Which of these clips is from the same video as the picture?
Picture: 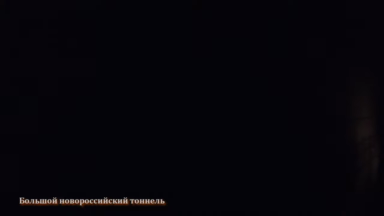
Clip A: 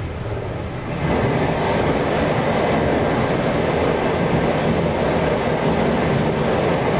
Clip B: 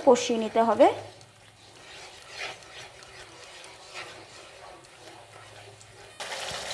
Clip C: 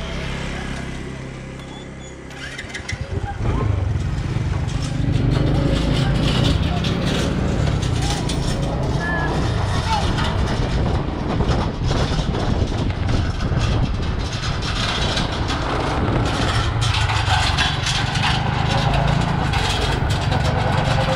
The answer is A